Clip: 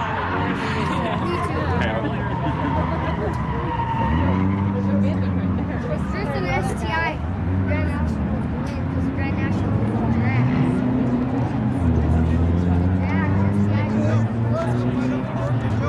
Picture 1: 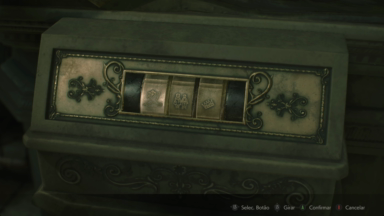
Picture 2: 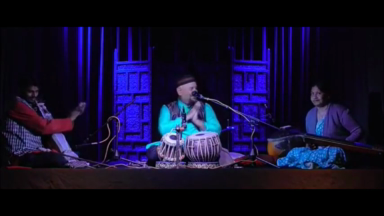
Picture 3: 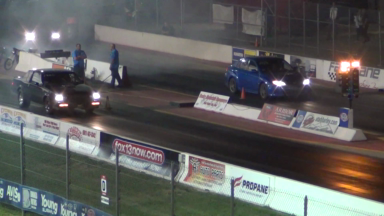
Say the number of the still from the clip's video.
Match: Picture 3